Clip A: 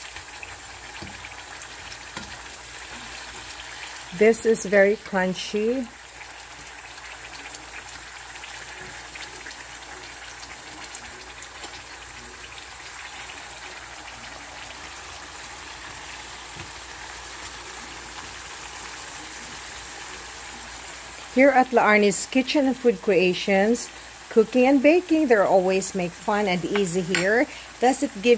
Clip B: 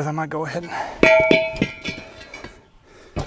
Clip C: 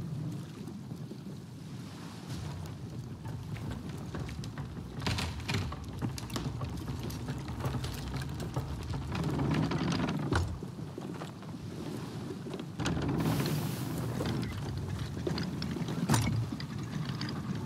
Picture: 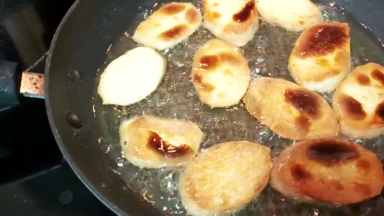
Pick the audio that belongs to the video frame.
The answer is A